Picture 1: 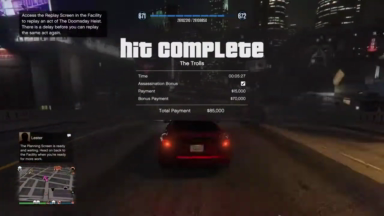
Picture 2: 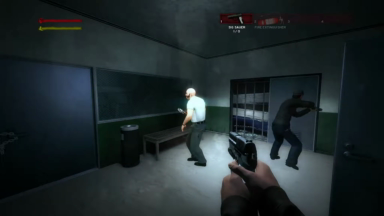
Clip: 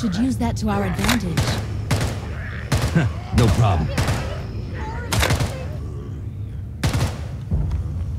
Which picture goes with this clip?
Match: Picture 2